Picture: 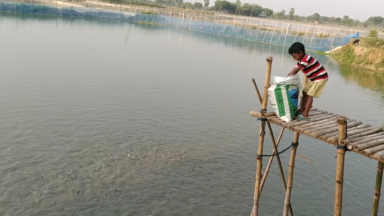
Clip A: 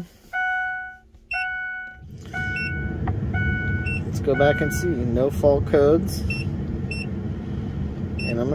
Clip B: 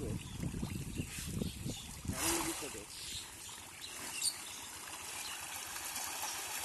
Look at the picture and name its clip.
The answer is B